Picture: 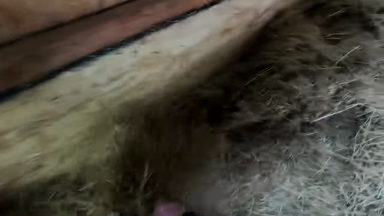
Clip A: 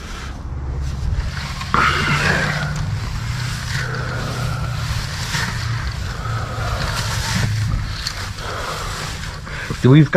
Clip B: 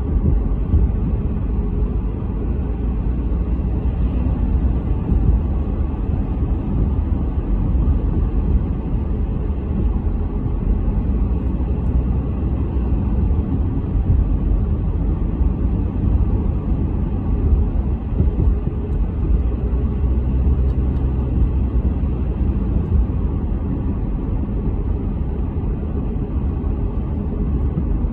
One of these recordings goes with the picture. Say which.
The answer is A